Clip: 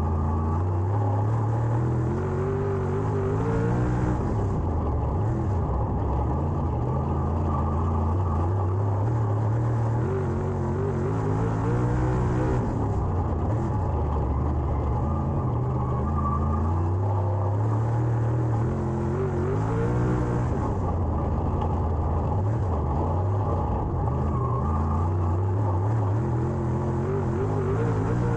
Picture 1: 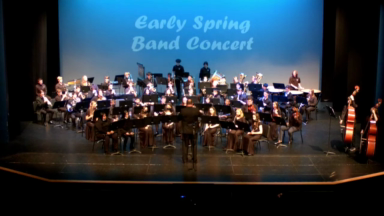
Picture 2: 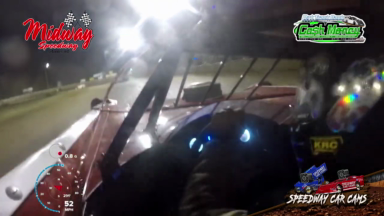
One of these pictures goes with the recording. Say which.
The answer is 2